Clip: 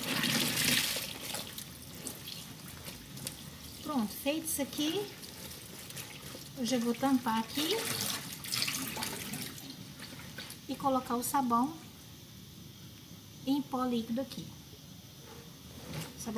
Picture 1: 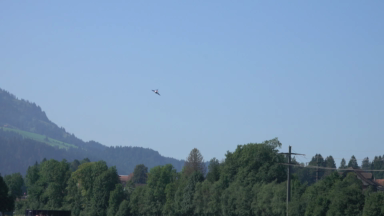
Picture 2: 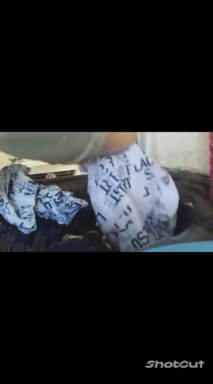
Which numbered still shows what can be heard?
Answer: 2